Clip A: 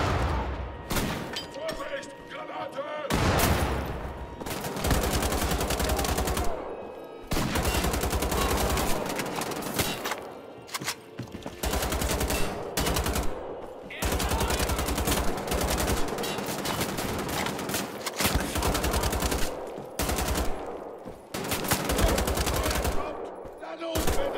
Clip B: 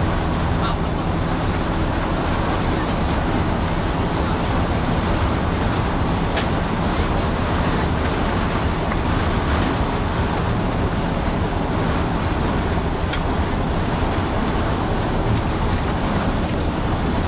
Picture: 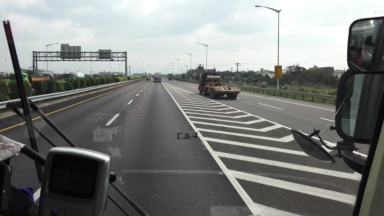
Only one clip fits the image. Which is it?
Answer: B